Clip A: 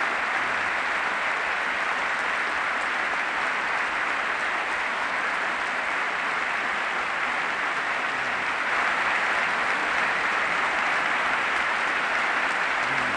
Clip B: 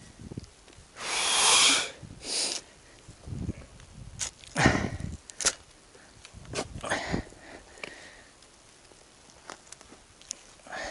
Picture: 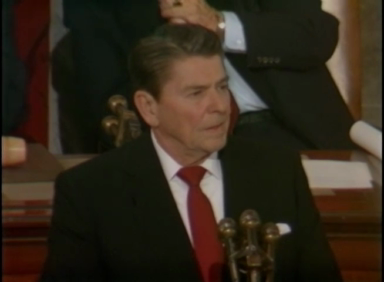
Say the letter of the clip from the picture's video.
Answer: A